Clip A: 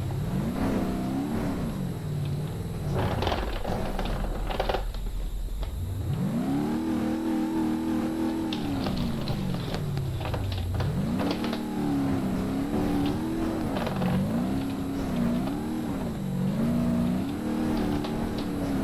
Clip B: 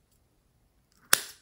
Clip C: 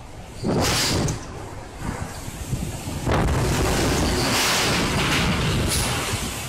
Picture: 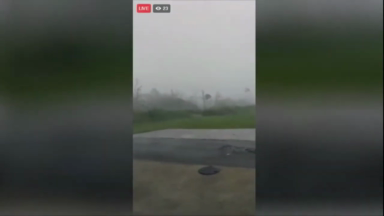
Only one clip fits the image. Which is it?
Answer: C